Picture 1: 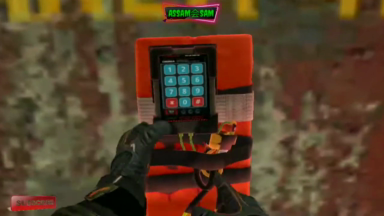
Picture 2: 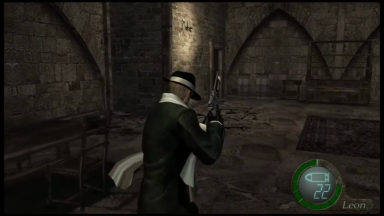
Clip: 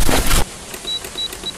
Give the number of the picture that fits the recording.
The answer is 1